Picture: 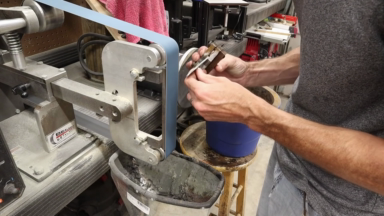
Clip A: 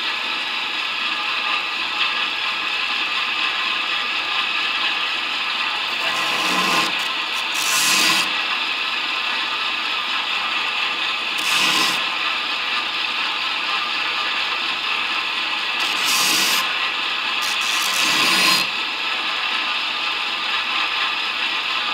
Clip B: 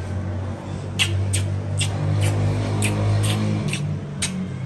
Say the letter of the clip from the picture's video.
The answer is A